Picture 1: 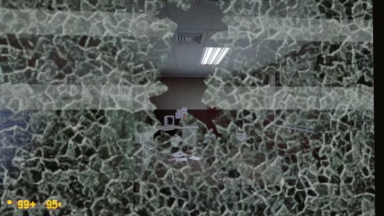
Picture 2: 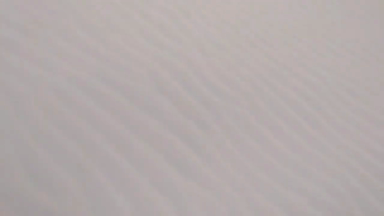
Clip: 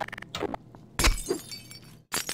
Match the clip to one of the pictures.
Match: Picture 1